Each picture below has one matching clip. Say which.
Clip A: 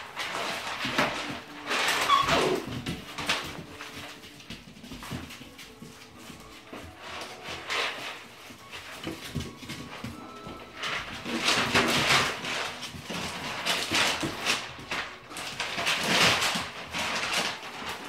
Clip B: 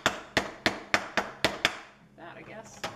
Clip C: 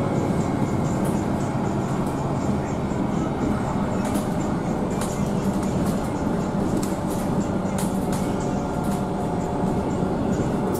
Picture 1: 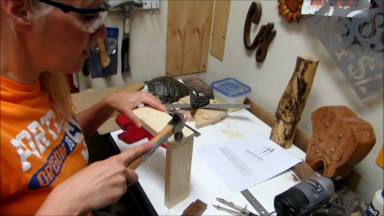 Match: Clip B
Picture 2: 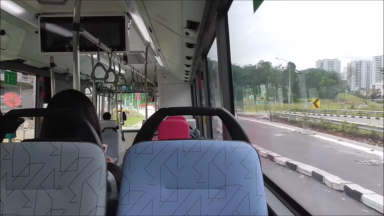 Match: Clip C